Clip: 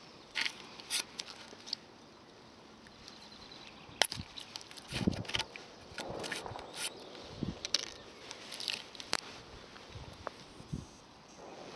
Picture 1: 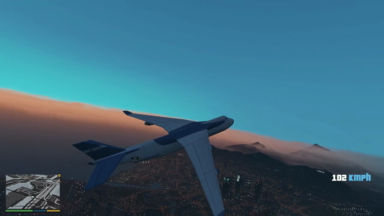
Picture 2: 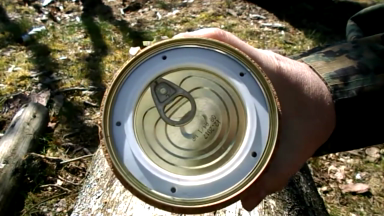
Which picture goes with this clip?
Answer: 2